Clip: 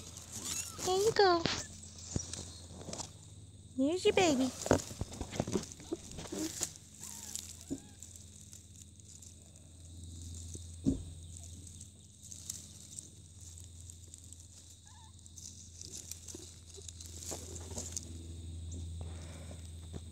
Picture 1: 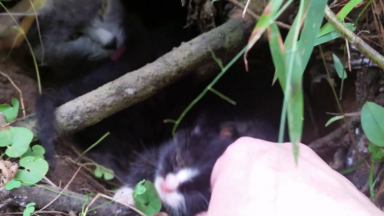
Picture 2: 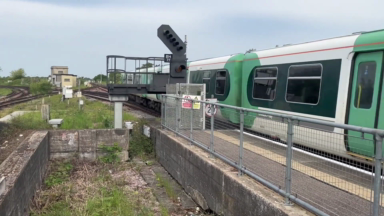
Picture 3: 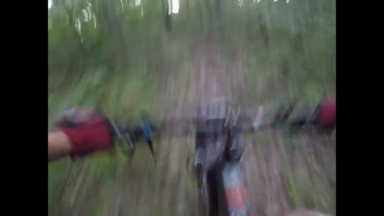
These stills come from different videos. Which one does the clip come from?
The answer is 1